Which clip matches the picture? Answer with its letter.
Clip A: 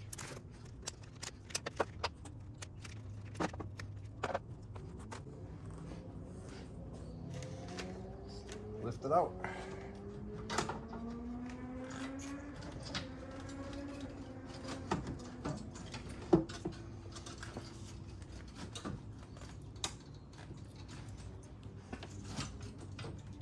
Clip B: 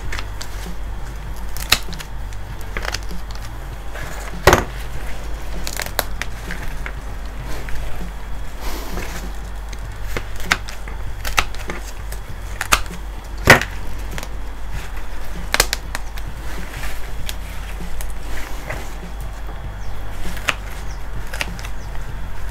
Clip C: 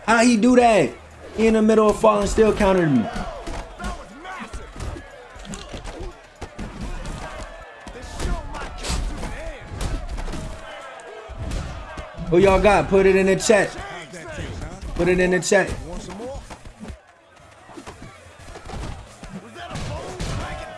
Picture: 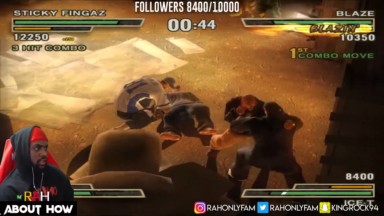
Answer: C